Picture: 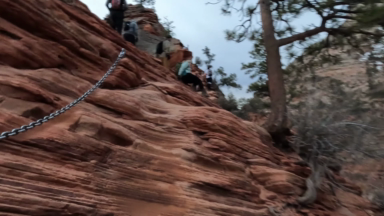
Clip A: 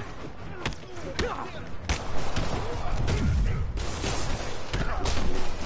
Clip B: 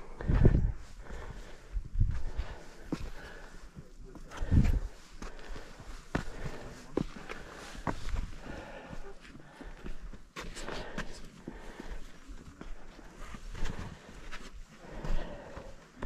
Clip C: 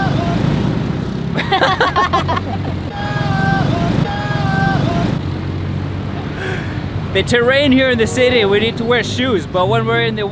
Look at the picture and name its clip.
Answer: B